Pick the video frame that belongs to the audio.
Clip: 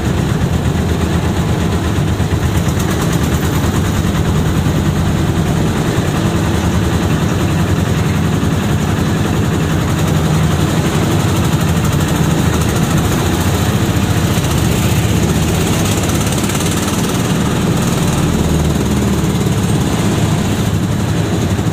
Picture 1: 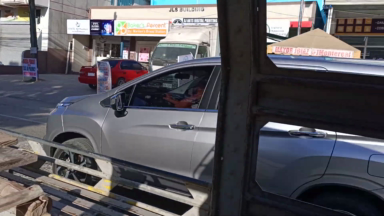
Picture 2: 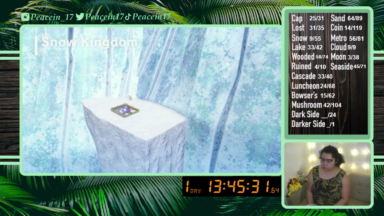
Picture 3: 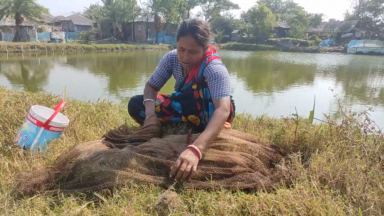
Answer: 1